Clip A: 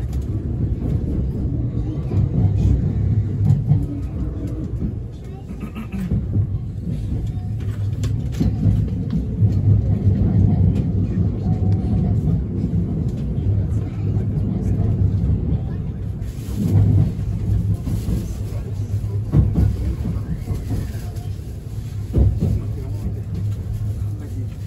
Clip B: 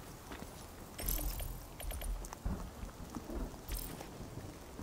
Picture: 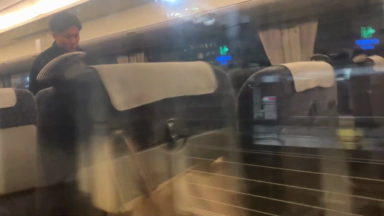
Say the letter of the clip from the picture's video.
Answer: A